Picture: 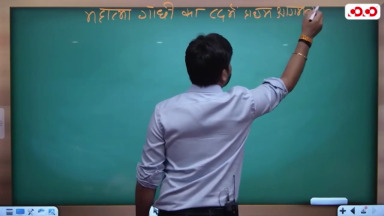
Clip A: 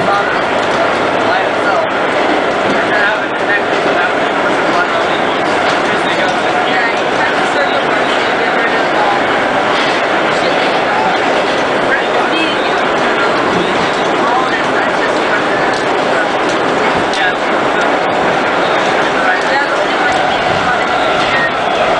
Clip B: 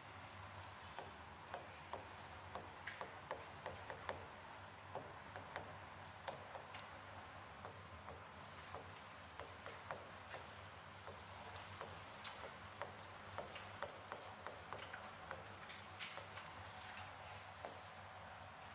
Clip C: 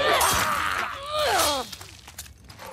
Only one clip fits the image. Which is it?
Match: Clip B